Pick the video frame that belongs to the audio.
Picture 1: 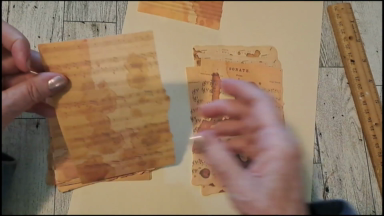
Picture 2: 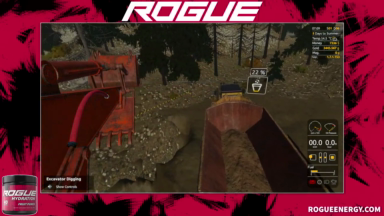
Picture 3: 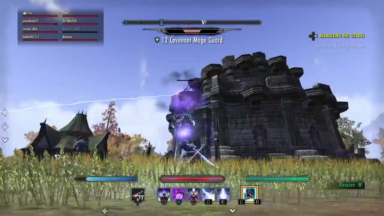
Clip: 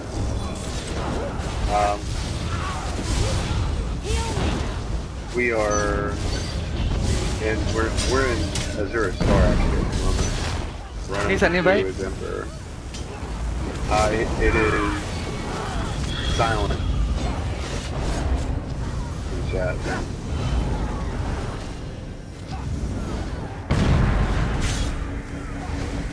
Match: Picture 3